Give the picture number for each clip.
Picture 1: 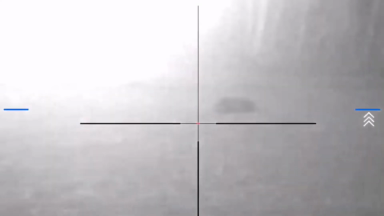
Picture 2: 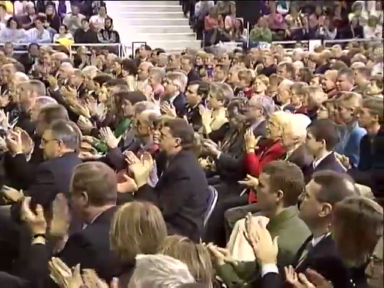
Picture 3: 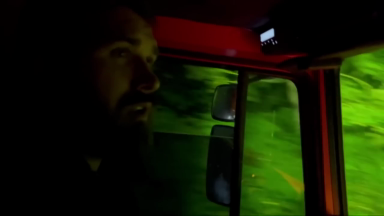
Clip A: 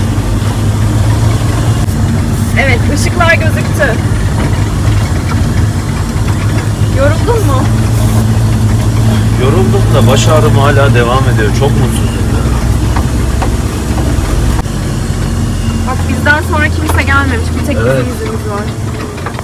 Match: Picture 3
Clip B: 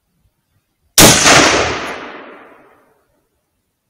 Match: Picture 1